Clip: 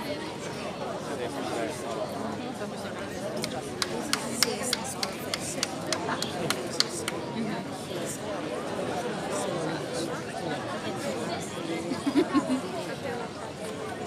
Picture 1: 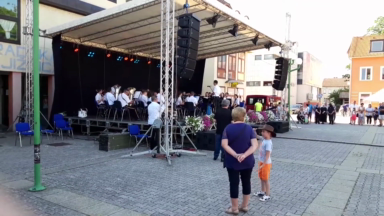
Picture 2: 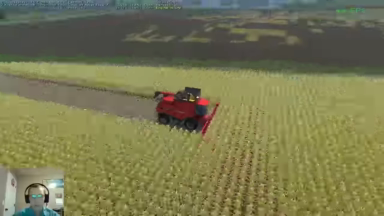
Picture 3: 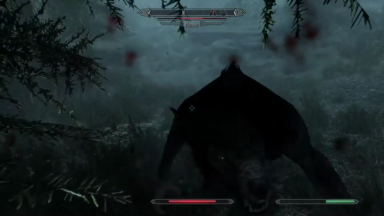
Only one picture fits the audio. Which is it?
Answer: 1